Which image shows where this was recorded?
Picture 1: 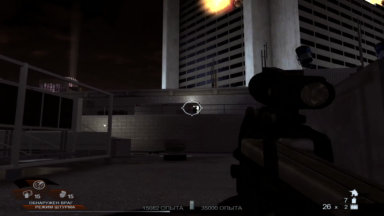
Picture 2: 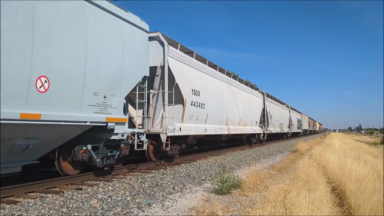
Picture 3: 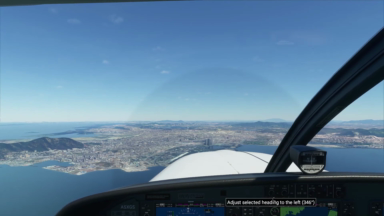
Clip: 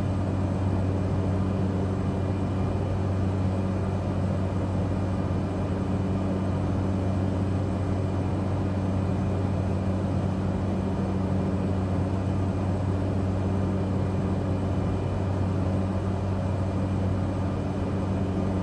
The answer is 3